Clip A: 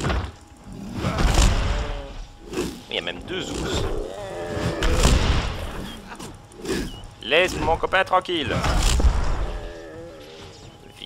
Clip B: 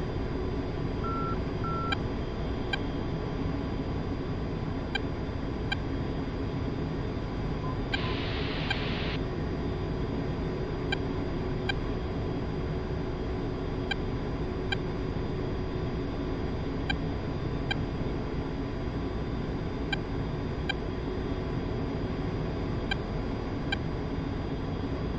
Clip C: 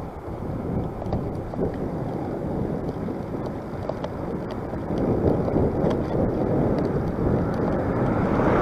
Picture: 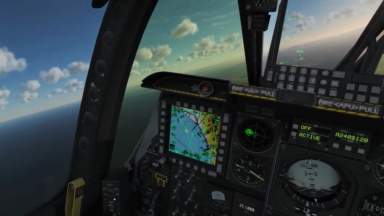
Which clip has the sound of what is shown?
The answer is B